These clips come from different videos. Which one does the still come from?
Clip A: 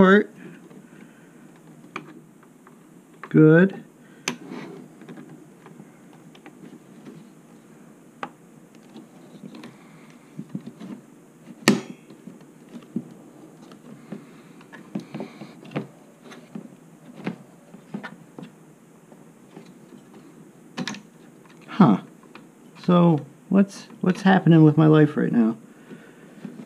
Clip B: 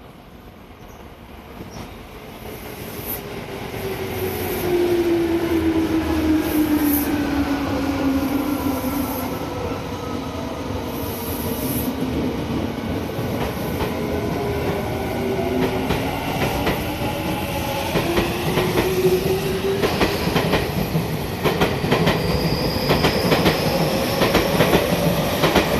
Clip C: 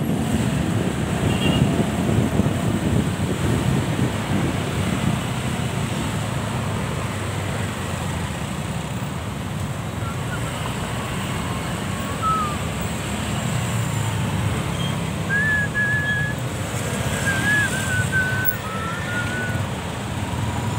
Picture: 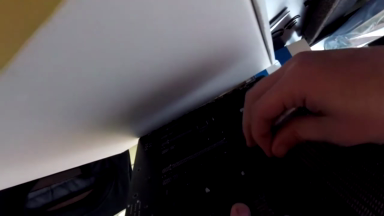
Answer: A